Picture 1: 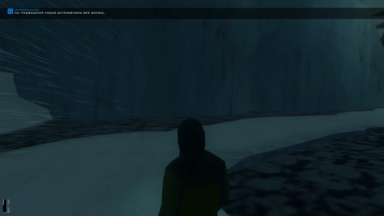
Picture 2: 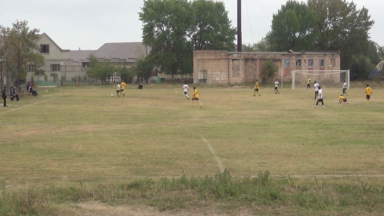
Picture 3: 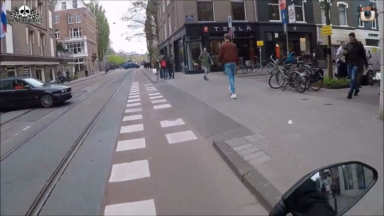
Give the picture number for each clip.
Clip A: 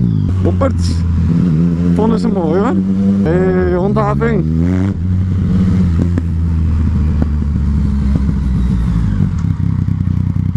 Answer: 3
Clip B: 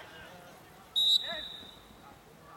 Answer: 2